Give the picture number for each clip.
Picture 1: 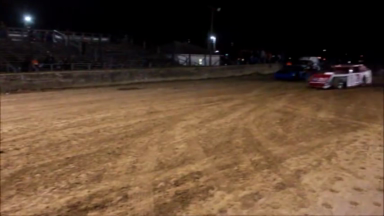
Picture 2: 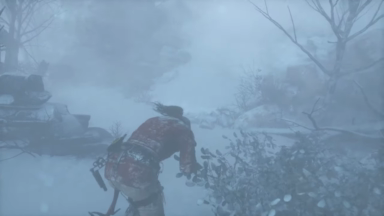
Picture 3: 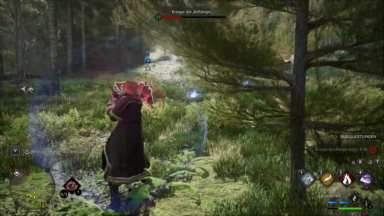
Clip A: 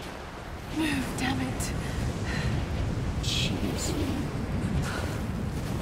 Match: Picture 2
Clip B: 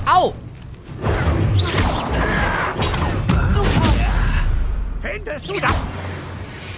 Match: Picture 3